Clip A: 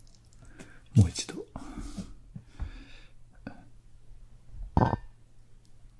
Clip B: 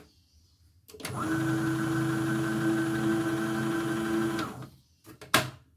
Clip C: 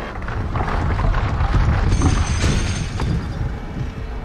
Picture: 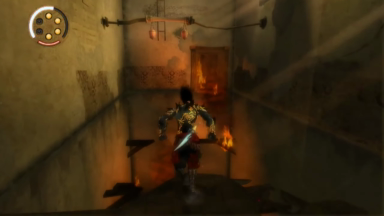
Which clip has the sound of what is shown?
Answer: C